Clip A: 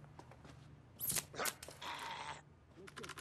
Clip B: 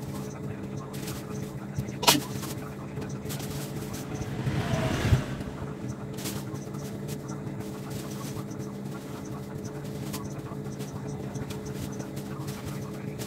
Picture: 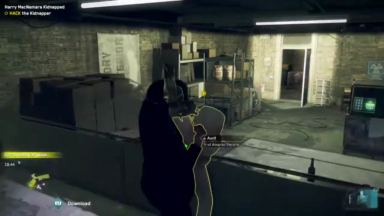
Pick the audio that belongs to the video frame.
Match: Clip A